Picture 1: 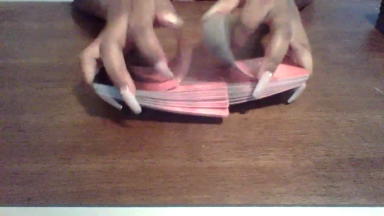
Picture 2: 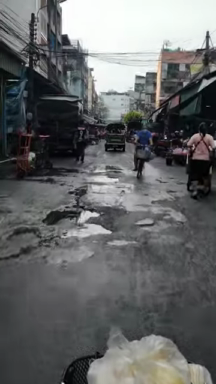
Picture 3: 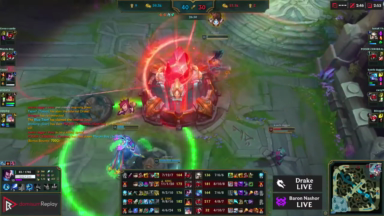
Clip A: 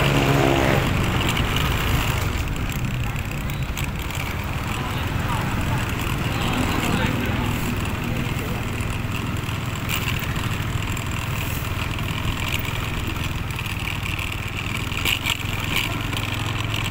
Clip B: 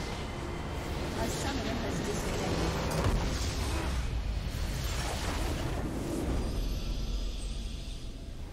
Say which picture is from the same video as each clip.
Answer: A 2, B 3